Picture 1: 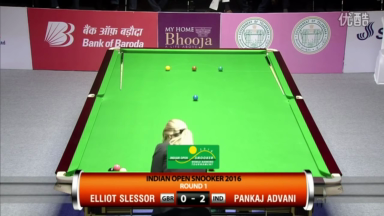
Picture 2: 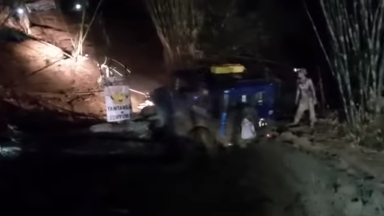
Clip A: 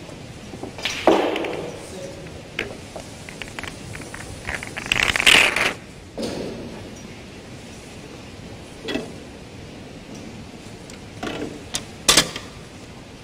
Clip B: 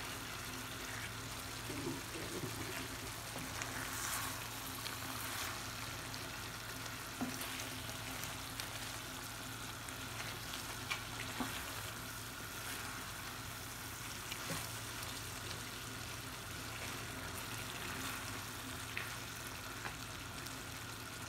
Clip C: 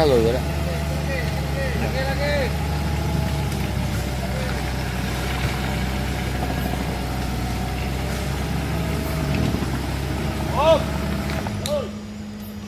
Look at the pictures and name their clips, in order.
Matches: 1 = A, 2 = C